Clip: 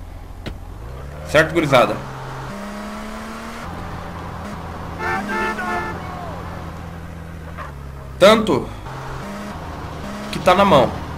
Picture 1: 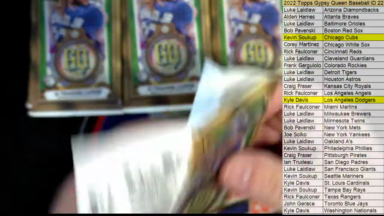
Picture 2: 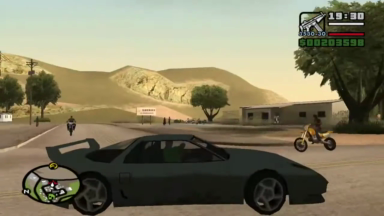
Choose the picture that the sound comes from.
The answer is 2